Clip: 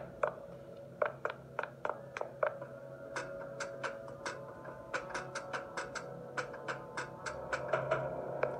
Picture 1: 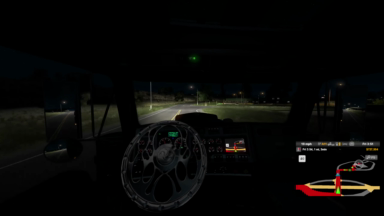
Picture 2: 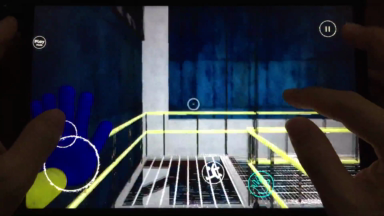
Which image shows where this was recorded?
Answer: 2